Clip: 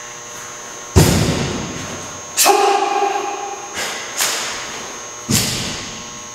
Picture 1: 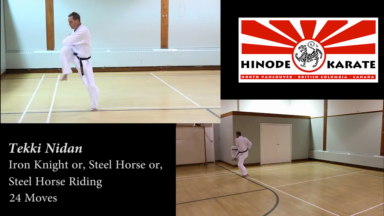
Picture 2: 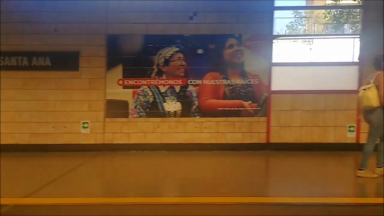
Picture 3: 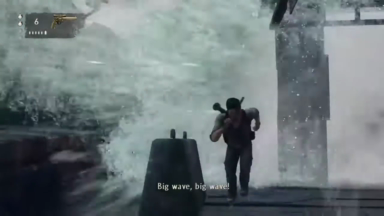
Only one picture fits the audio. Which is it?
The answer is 1